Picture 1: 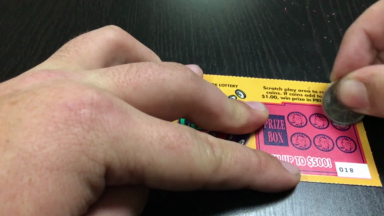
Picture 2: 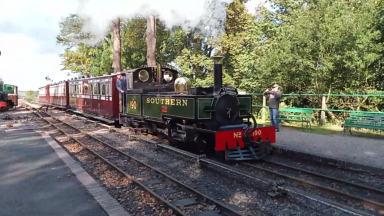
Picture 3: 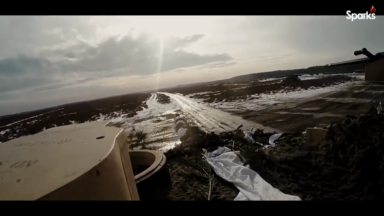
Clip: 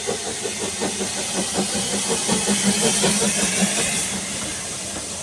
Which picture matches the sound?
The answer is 2